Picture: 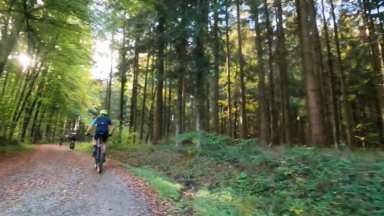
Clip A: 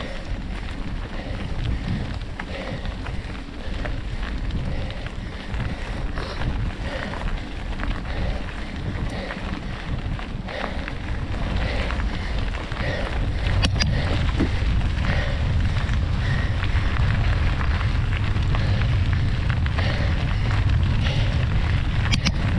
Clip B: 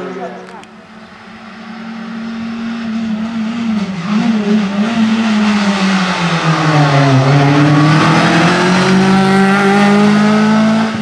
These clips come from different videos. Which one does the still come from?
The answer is A